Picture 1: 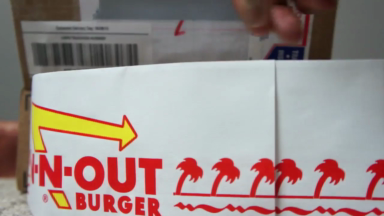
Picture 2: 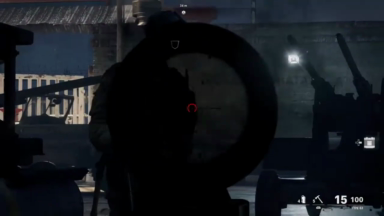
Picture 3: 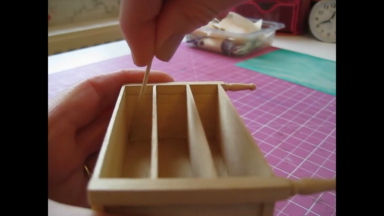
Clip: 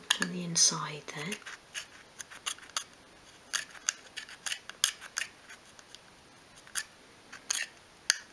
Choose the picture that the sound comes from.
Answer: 3